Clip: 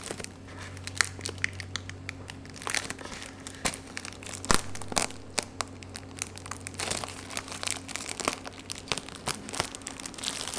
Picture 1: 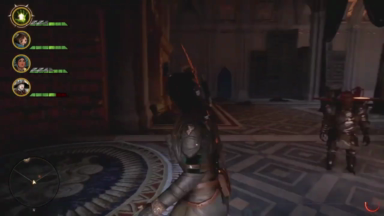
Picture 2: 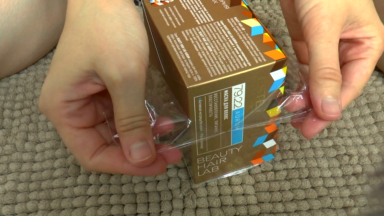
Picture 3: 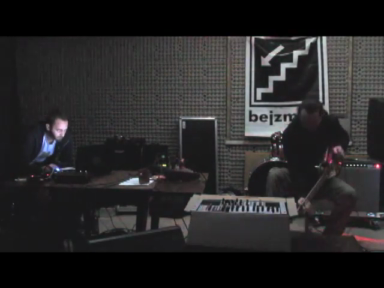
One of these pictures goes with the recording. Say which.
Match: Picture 2